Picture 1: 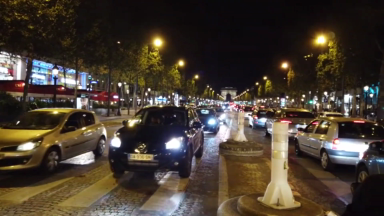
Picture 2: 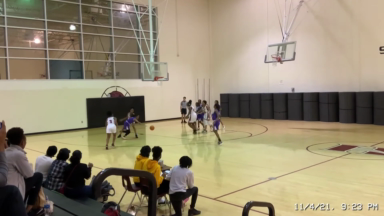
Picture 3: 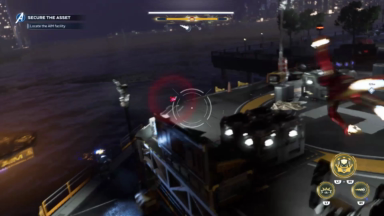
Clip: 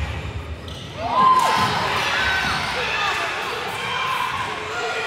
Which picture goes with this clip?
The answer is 2